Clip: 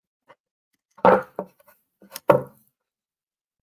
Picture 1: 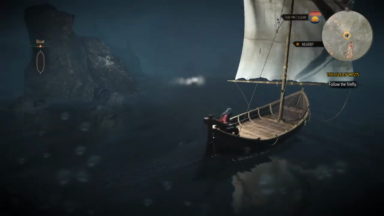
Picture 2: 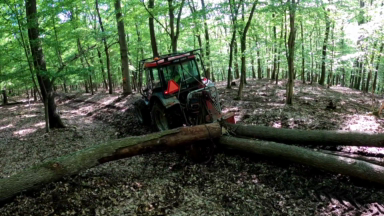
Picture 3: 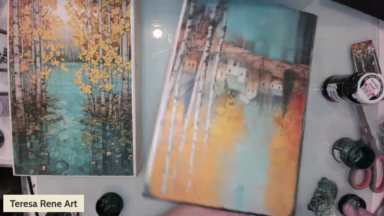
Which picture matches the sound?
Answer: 3